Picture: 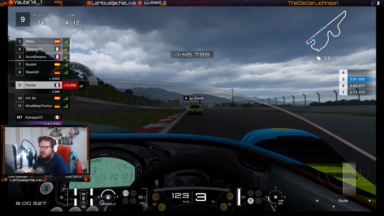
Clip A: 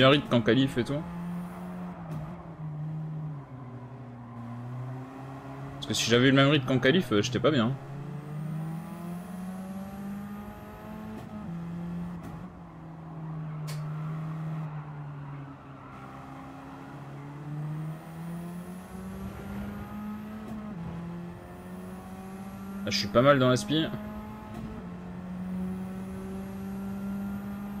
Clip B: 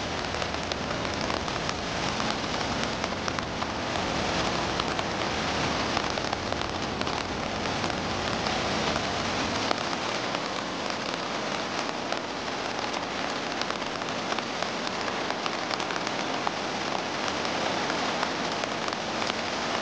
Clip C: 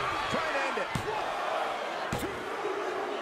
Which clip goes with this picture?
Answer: A